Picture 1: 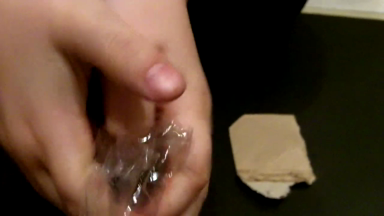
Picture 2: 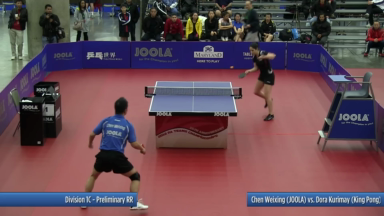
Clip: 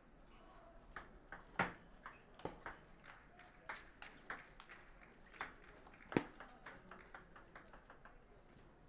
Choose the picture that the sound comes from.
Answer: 2